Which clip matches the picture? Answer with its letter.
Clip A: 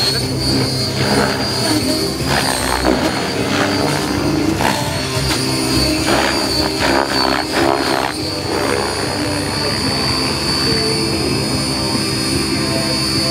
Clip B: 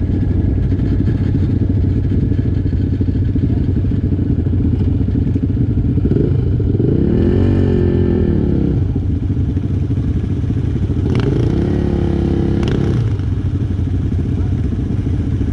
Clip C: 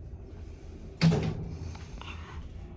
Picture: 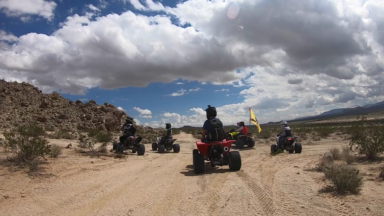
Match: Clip B